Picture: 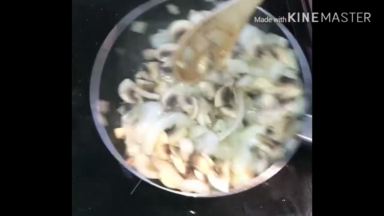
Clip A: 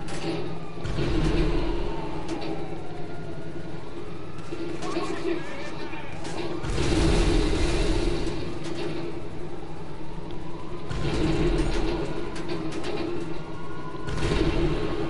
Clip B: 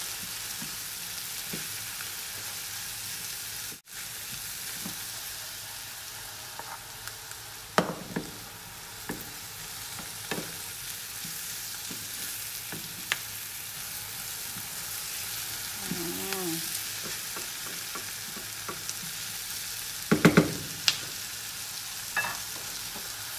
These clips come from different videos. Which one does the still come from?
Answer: B